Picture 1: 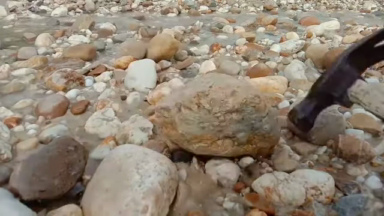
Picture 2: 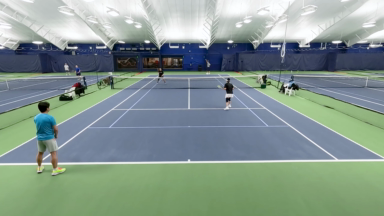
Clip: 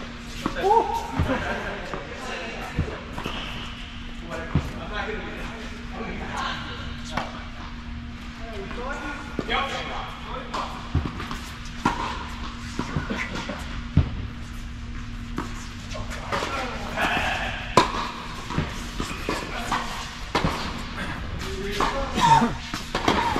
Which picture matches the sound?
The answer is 2